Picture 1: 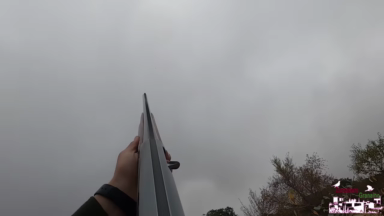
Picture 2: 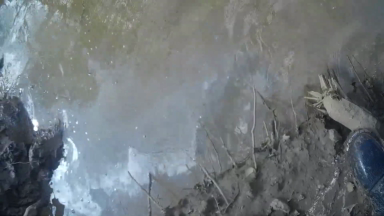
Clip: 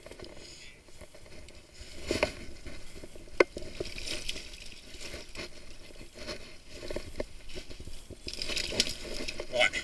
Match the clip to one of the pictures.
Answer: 2